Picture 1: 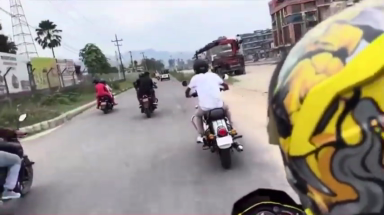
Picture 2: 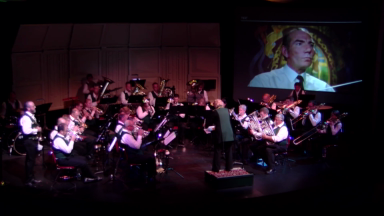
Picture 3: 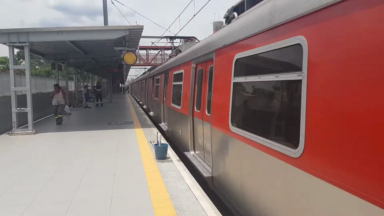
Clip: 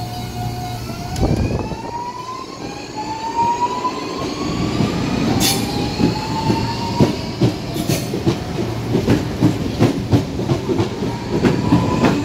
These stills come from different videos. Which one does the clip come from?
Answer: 3